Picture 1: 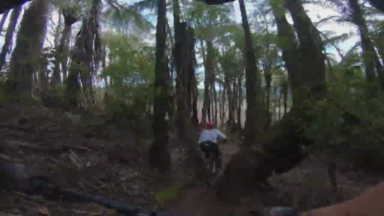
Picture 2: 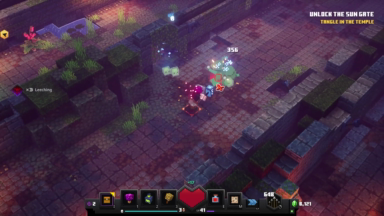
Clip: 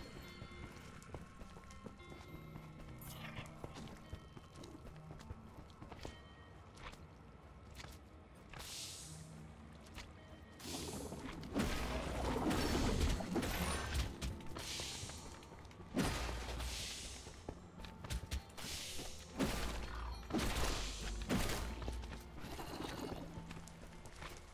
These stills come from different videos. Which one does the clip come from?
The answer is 2